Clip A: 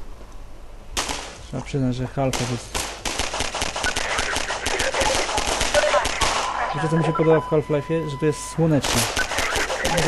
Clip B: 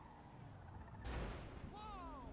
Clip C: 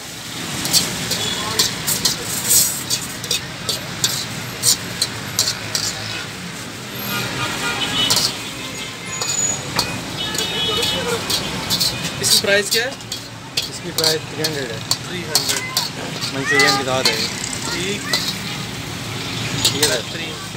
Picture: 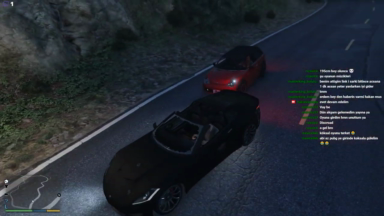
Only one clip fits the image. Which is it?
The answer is B